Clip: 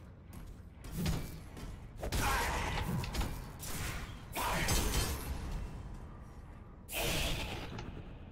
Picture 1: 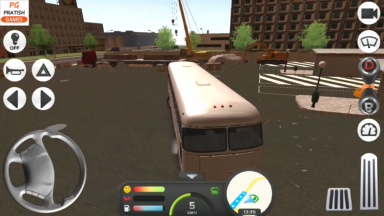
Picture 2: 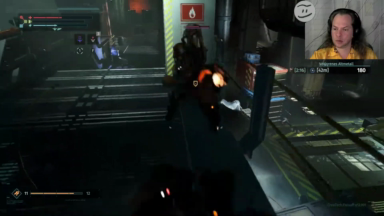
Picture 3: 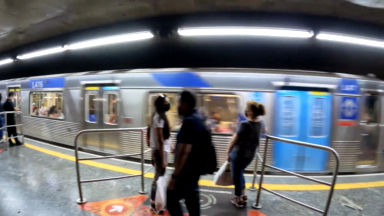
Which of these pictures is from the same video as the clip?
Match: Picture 2